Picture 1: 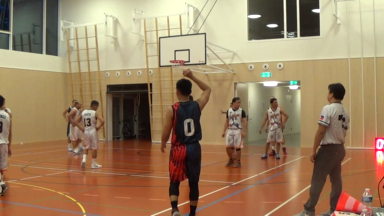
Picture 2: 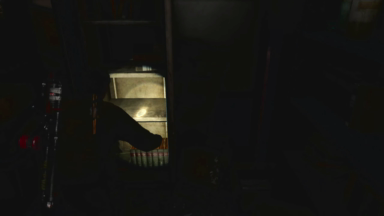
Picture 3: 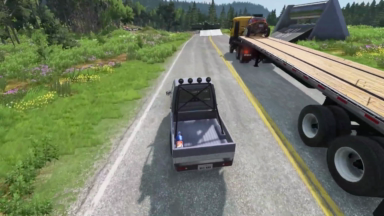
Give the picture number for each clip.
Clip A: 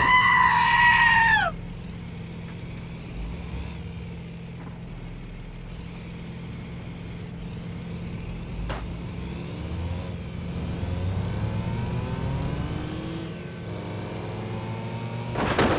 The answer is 3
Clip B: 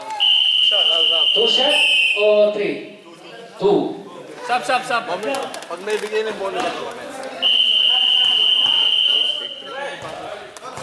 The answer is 1